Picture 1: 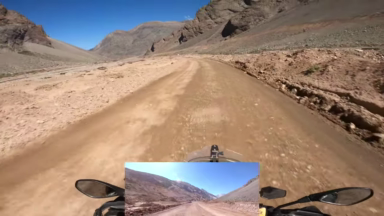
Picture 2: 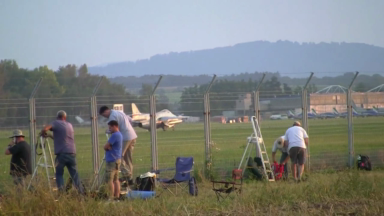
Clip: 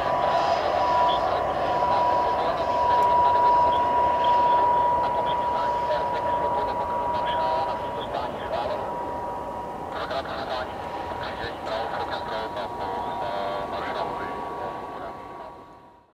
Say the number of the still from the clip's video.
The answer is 2